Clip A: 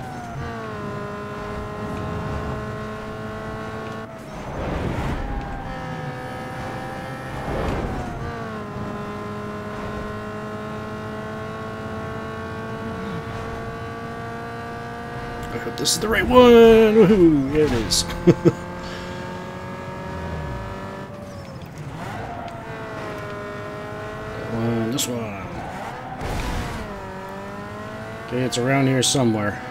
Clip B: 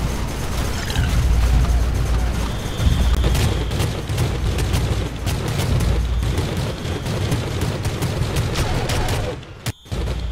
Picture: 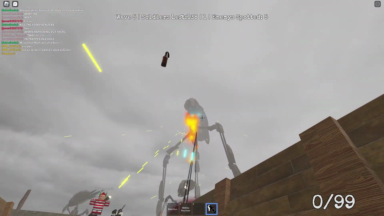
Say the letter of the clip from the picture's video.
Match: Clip B